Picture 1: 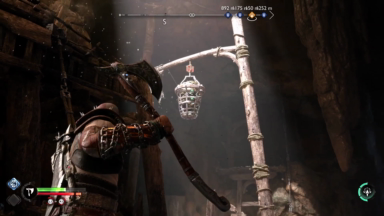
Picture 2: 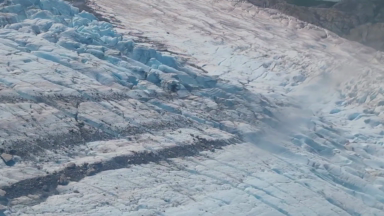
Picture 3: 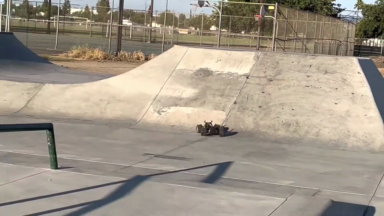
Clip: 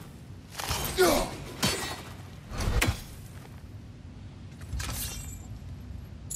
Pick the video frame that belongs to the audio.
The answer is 1